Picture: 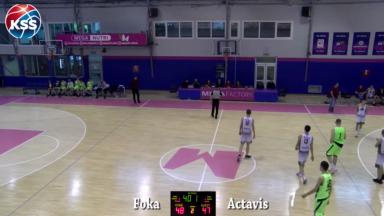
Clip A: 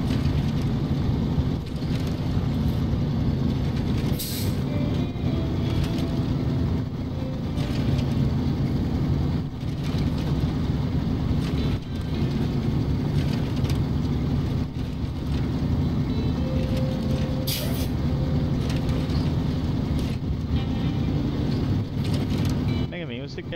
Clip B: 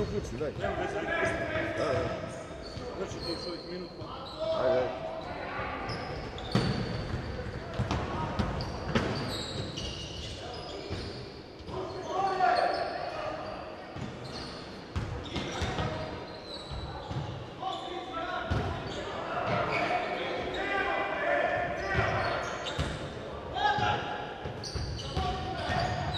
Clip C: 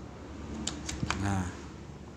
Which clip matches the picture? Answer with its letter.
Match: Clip B